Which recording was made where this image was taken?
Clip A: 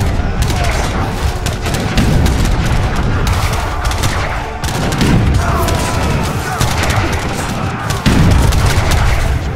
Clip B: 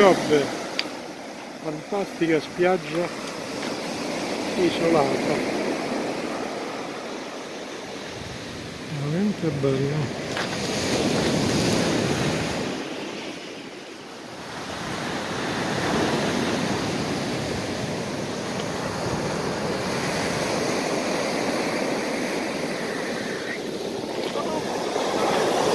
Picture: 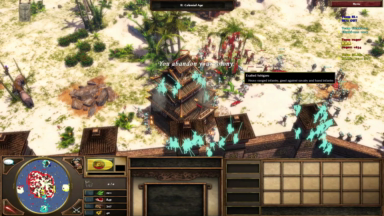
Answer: A